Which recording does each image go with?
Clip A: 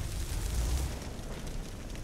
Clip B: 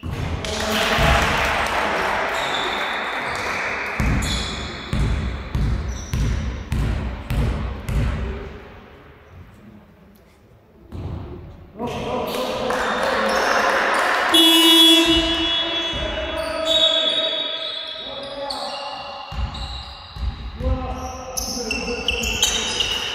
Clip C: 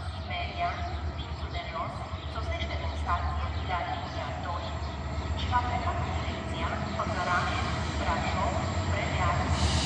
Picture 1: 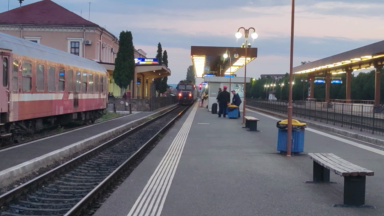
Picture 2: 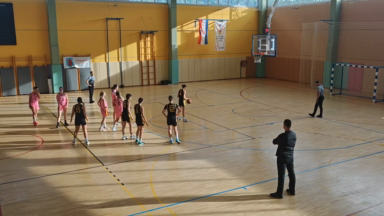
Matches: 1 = C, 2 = B